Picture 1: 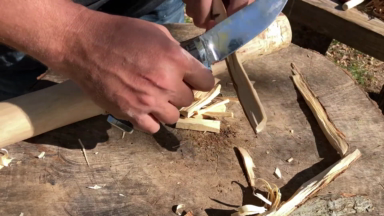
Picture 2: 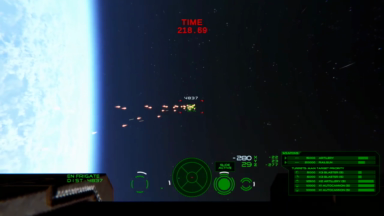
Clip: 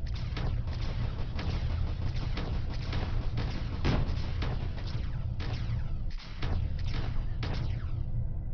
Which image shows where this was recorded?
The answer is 2